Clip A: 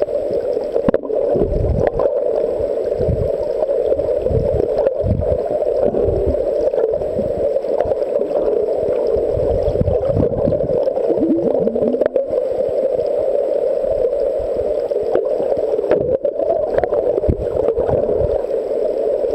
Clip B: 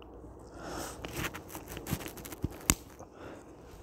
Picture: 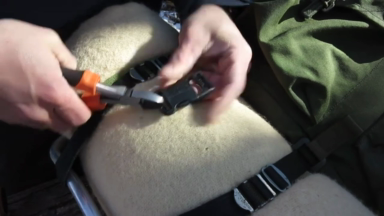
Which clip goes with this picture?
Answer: B